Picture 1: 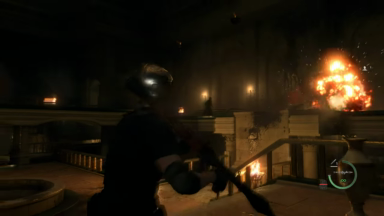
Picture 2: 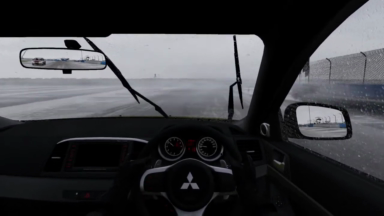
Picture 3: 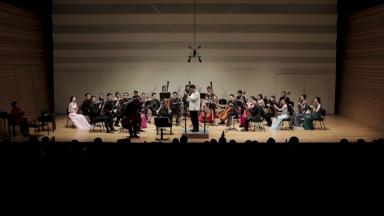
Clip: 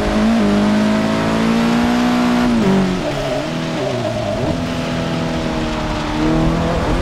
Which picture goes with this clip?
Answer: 2